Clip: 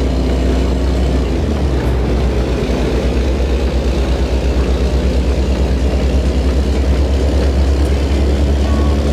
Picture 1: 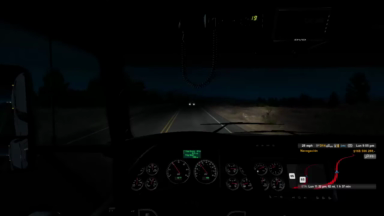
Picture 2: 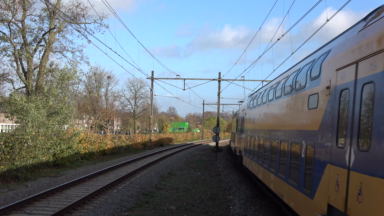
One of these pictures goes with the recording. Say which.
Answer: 1